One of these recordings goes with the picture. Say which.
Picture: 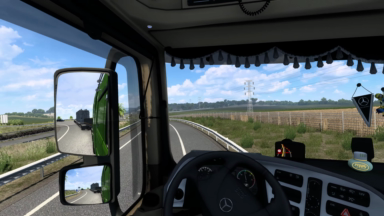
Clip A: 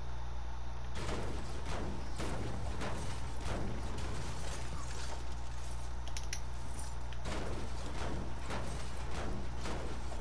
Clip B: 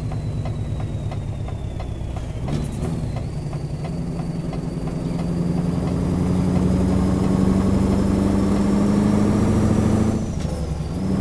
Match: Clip B